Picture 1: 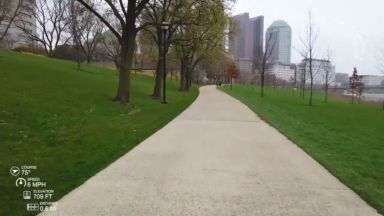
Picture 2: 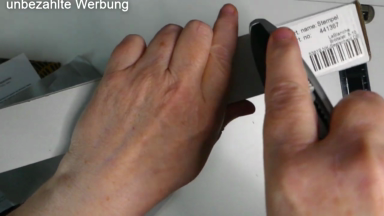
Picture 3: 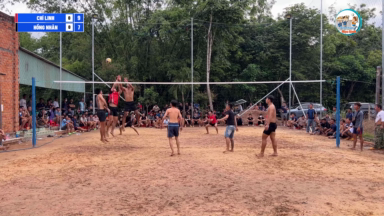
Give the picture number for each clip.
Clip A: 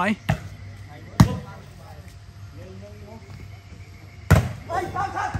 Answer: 3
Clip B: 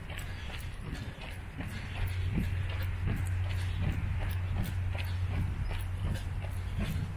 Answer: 1